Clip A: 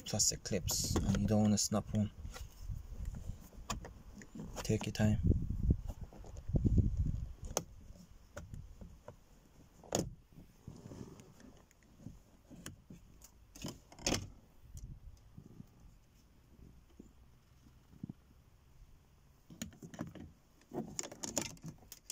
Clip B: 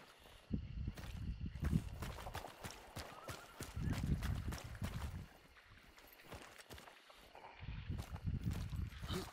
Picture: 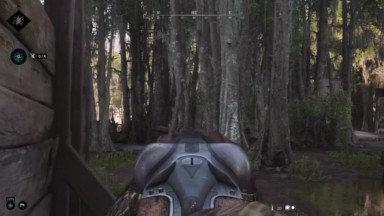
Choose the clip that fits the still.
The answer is B